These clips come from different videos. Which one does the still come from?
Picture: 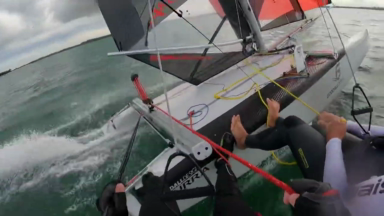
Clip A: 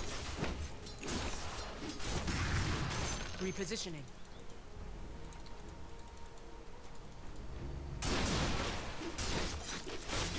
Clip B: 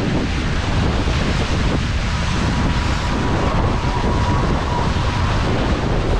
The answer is B